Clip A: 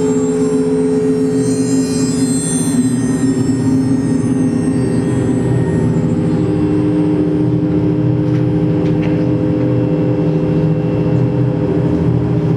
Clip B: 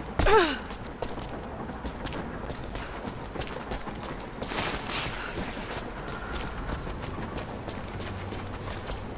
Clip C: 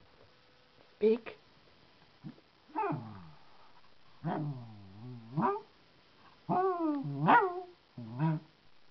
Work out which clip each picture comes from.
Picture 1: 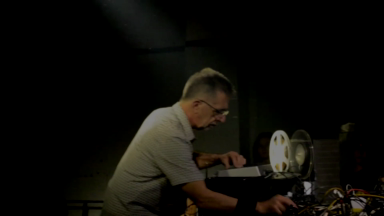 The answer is A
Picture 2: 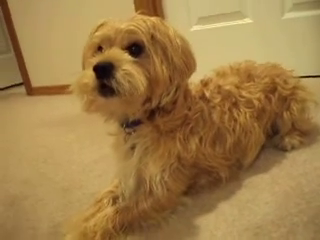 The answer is C